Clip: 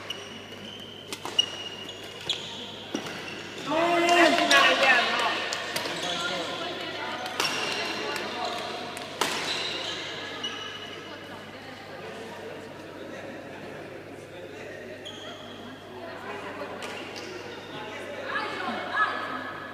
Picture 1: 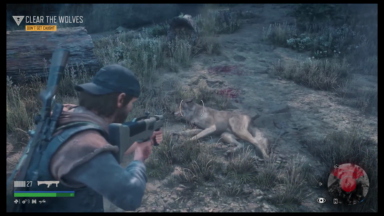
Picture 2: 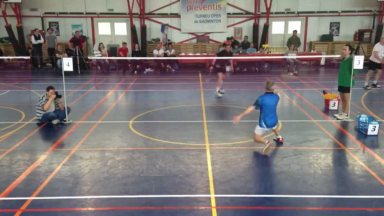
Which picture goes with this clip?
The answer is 2